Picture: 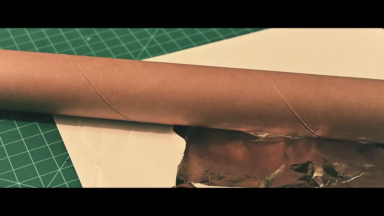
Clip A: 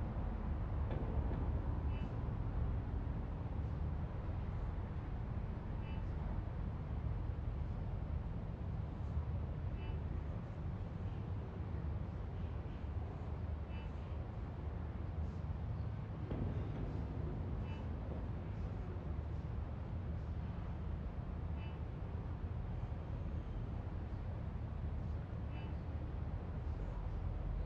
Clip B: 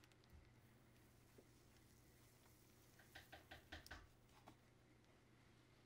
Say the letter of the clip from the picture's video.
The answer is B